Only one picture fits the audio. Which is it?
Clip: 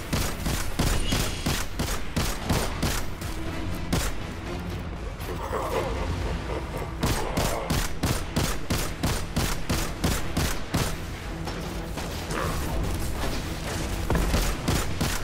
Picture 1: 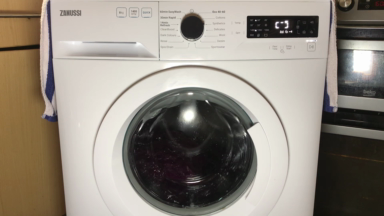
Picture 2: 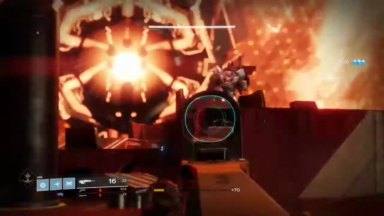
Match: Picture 2